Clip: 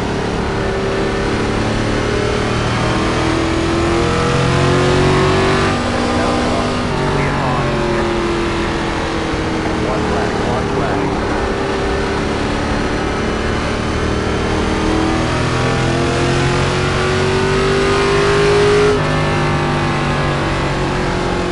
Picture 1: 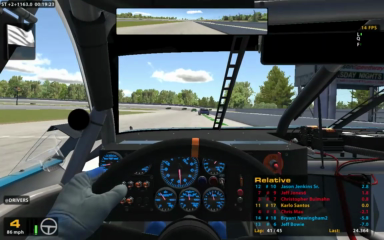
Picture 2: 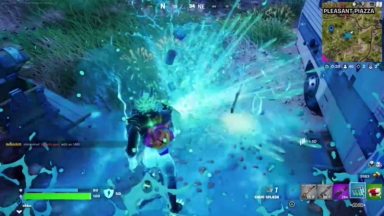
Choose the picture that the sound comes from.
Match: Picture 1